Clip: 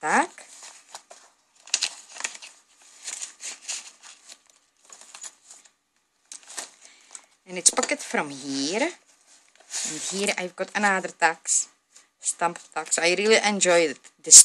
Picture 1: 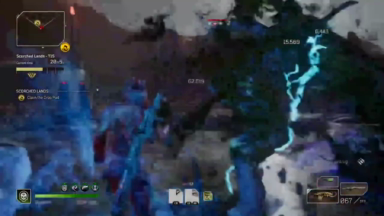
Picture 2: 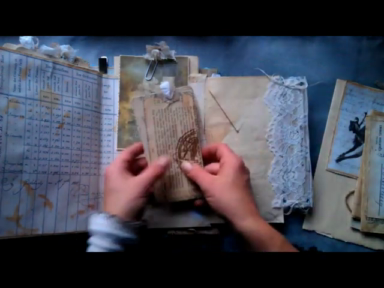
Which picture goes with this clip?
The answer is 2